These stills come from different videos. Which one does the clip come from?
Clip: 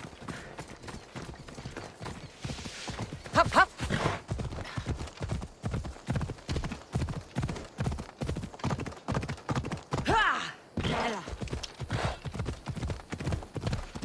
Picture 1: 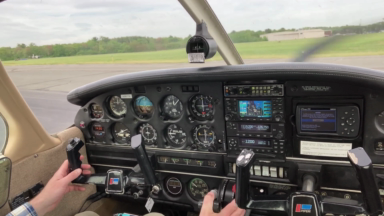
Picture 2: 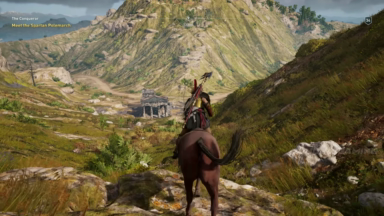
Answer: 2